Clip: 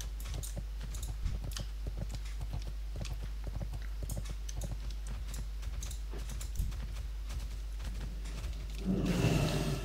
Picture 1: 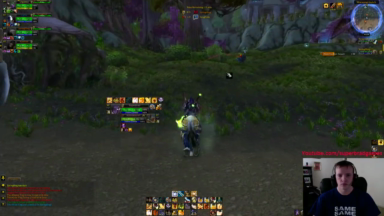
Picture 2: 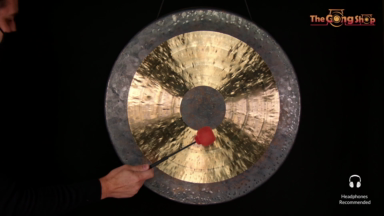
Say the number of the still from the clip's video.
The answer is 1